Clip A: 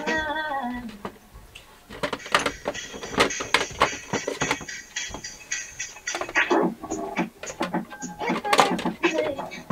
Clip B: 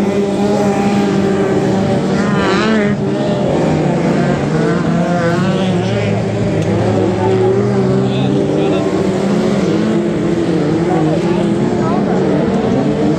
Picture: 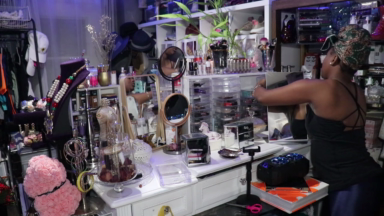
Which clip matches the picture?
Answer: A